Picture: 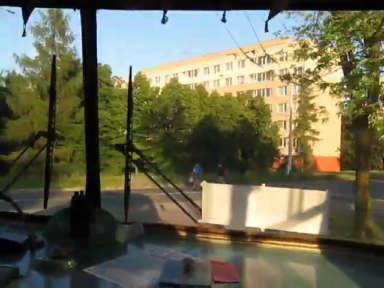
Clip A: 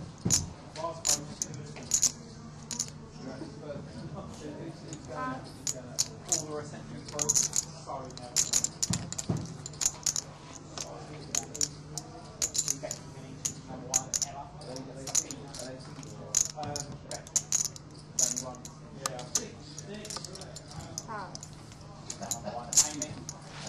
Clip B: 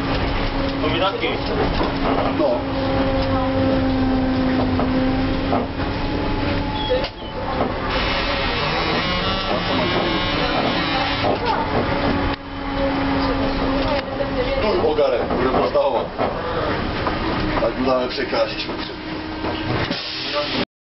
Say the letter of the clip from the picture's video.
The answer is B